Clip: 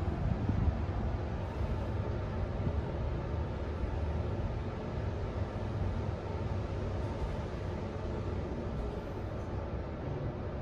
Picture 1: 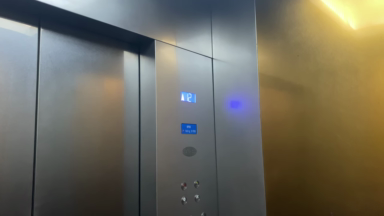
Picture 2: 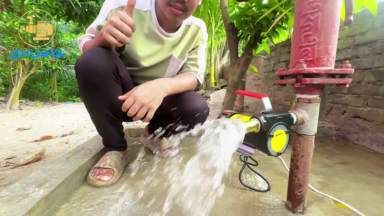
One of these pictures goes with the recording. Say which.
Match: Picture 1